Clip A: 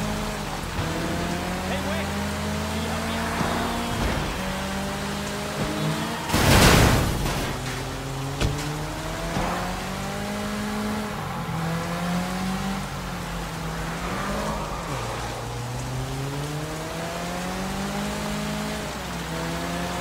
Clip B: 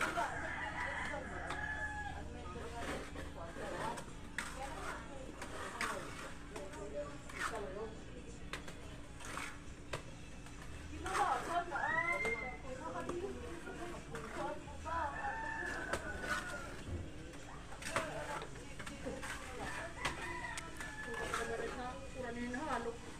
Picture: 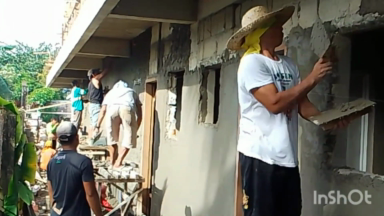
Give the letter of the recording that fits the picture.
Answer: B